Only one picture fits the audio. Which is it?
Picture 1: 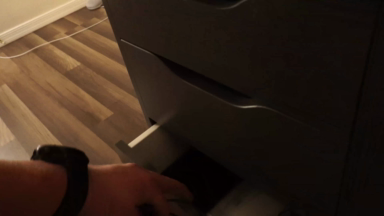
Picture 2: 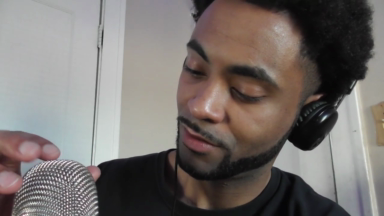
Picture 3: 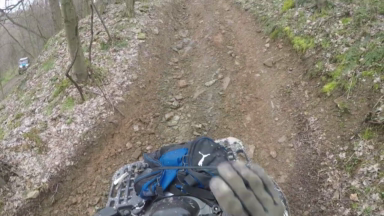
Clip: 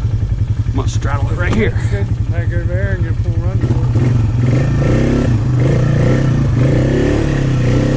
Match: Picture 3